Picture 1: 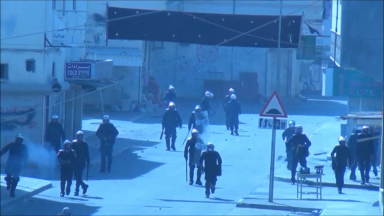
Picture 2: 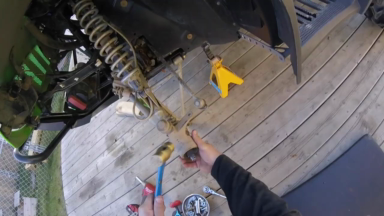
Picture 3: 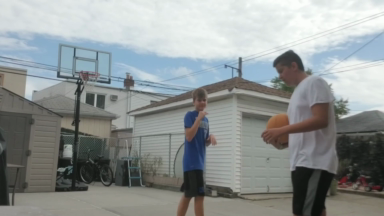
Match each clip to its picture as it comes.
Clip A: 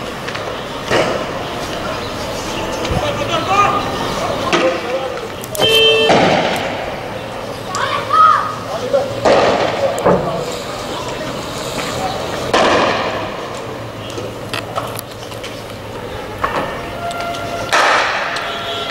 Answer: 1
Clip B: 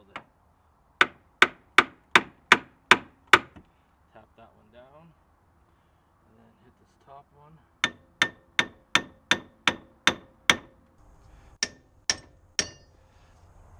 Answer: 2